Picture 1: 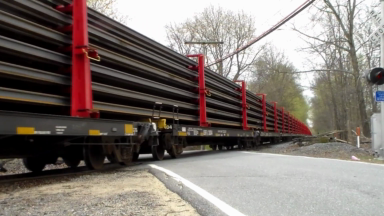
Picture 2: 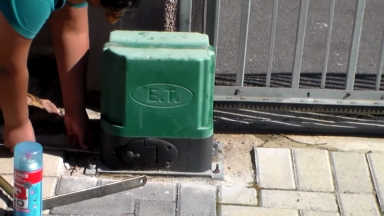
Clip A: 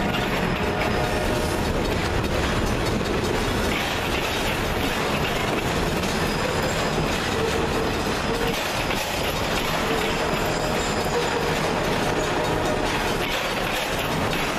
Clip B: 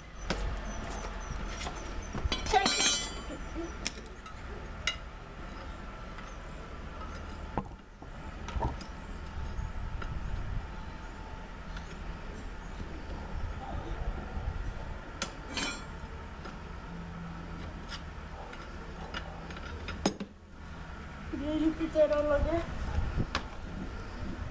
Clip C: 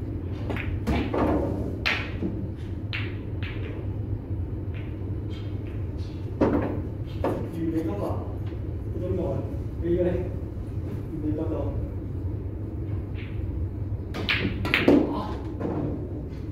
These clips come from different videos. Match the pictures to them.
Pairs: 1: A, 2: B